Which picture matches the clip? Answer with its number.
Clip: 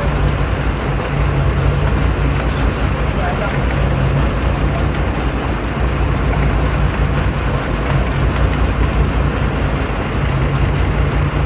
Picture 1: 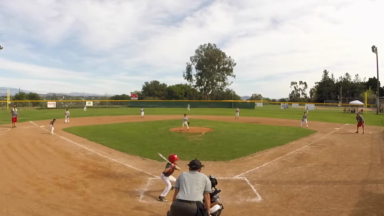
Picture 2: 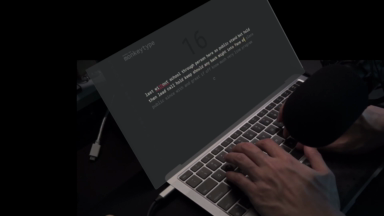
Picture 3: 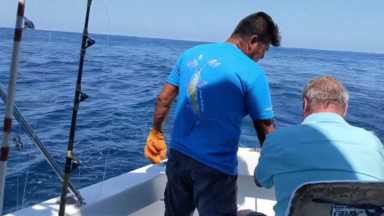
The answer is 3